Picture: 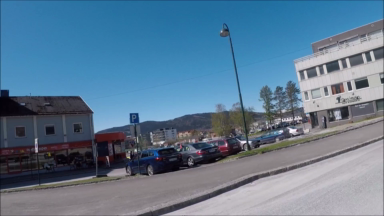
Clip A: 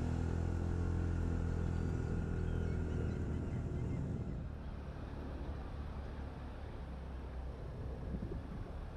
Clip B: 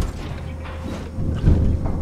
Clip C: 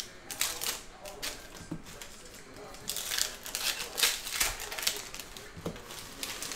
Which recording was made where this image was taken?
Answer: A